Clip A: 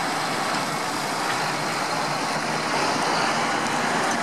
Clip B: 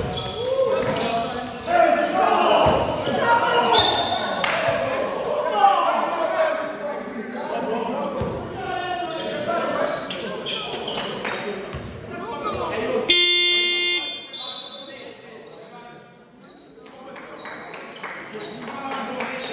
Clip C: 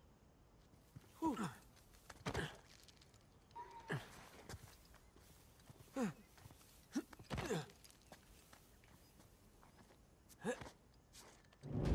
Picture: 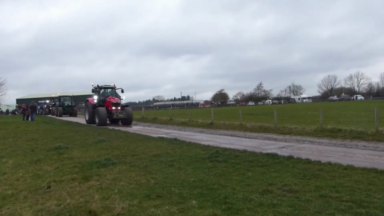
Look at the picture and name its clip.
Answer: A